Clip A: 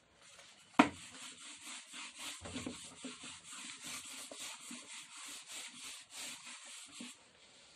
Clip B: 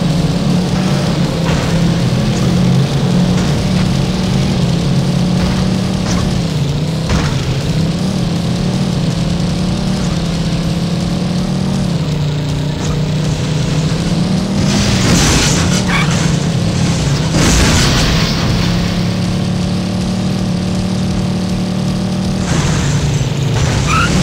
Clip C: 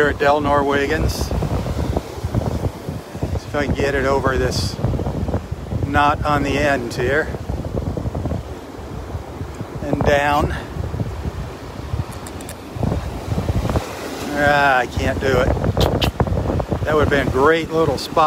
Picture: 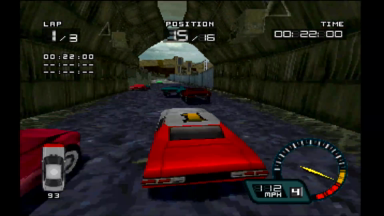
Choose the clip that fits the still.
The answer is B